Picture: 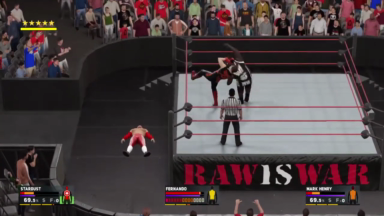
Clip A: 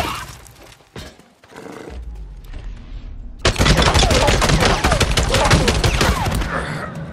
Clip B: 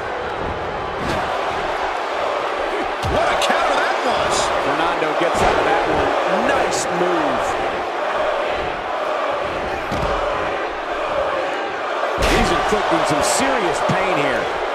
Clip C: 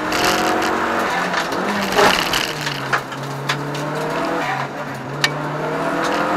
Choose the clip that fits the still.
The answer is B